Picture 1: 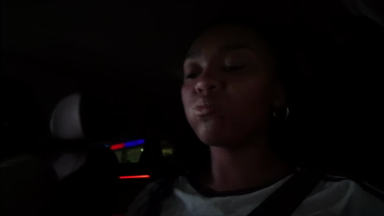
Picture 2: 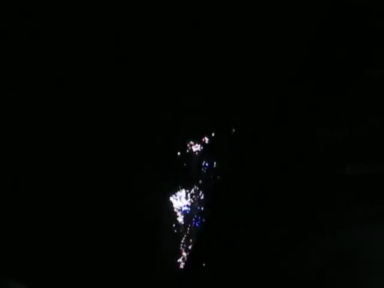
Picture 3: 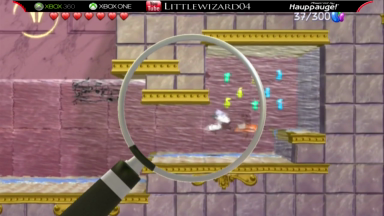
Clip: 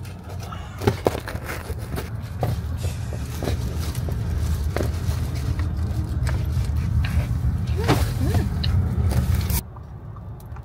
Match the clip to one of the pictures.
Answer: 1